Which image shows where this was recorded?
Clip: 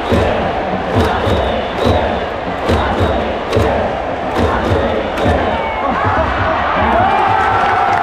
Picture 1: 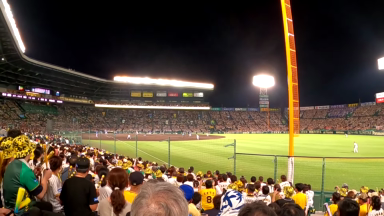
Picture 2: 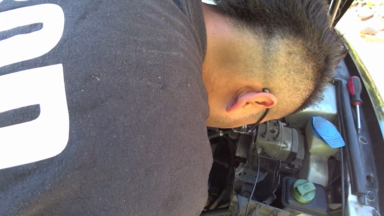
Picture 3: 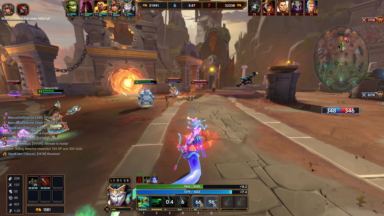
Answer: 1